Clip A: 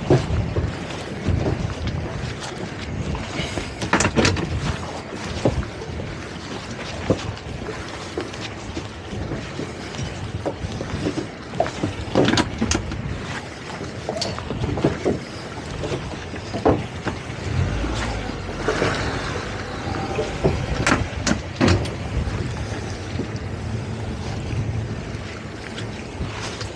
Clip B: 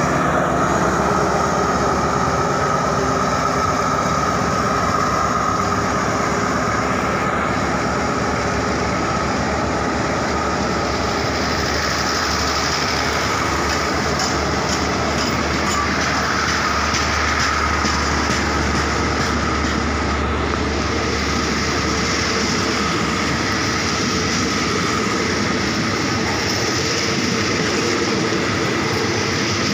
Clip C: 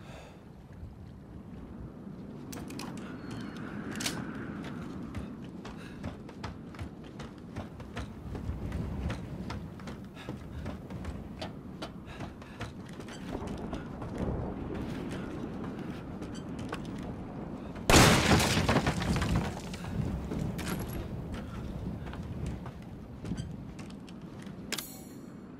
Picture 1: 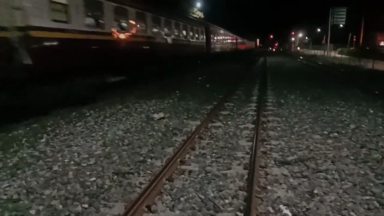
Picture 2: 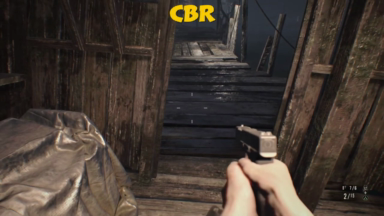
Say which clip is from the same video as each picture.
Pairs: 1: B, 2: C